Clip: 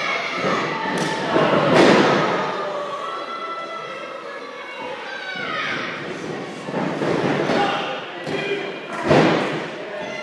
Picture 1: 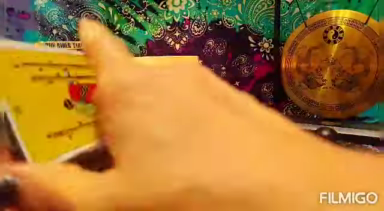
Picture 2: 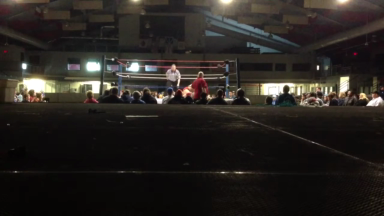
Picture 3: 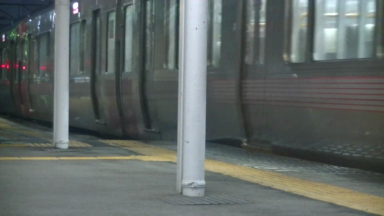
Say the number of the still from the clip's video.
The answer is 2